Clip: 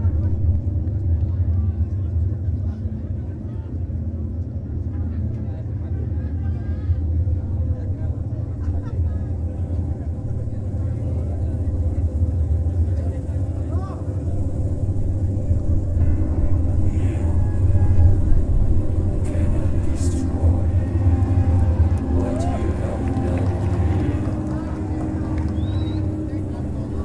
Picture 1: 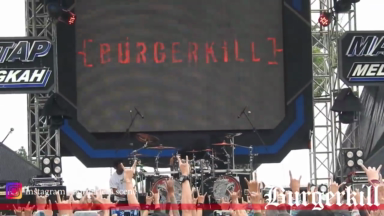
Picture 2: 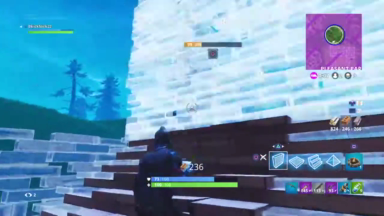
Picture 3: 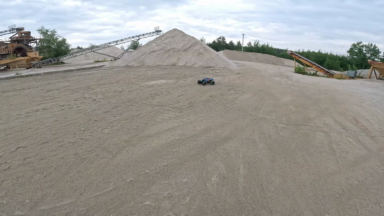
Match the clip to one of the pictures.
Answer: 1